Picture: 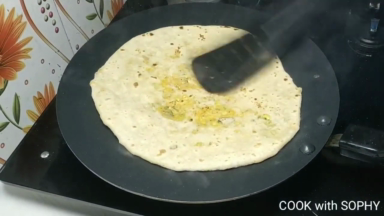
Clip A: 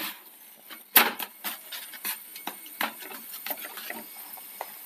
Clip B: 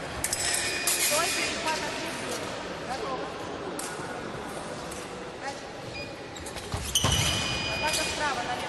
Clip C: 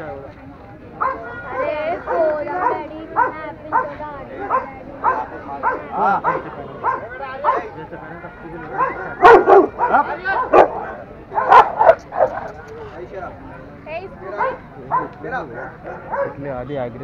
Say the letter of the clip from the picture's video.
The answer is A